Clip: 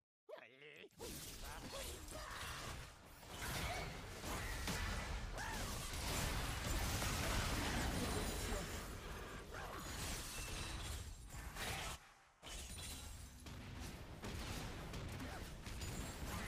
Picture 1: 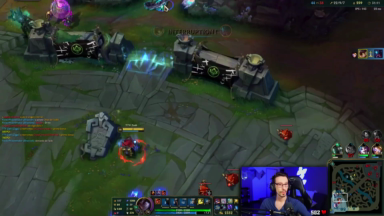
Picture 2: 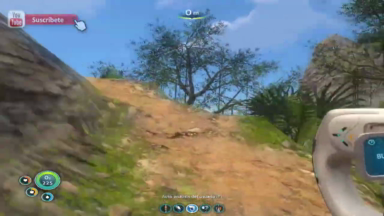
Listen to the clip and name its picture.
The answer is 1